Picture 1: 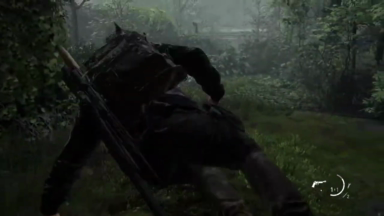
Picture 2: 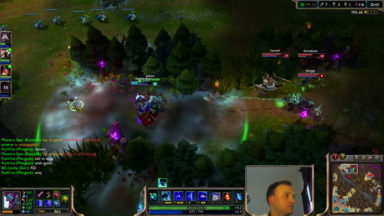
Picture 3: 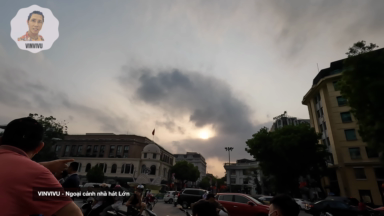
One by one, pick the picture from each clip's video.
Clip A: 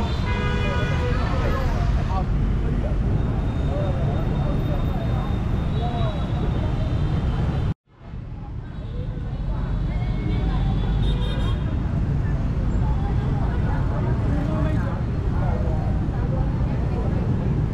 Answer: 3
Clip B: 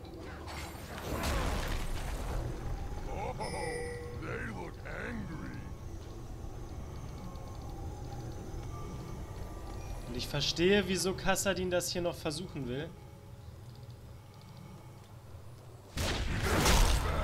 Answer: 2